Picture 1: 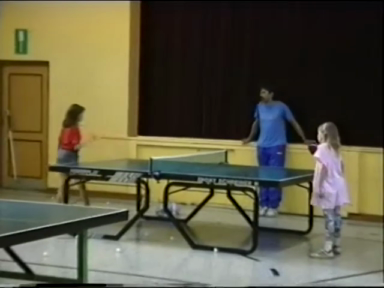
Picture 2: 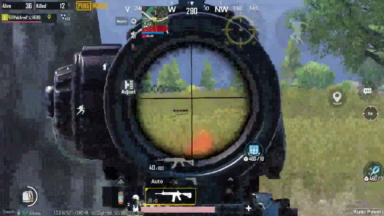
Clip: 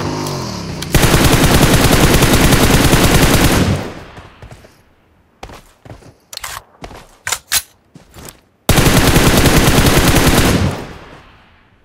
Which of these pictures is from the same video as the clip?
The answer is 2